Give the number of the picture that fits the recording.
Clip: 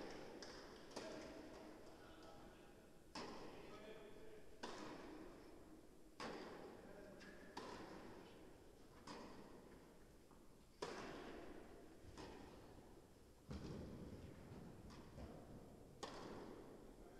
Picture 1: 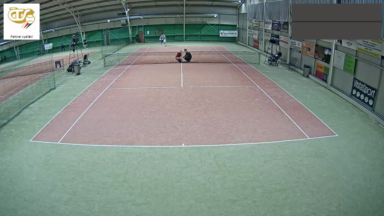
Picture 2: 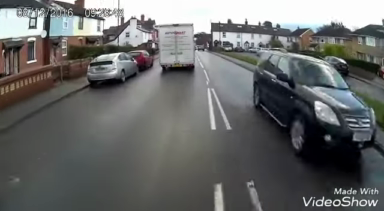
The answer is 1